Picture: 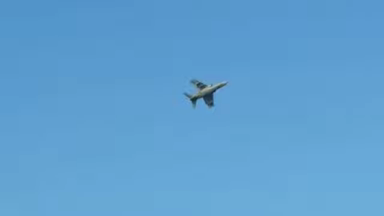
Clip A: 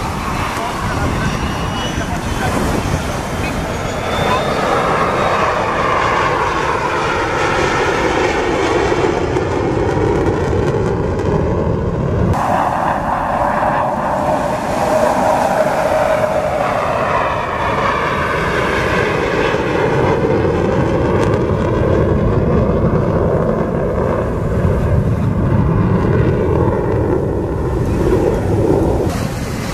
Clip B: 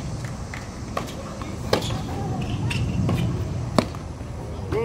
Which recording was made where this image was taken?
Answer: A